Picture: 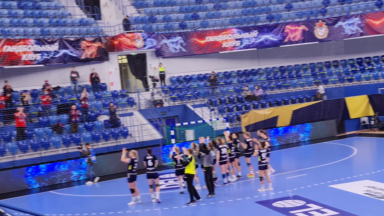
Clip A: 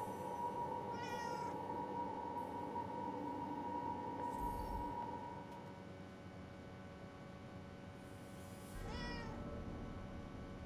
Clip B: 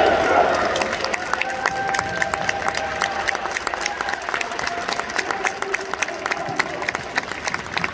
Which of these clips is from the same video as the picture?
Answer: B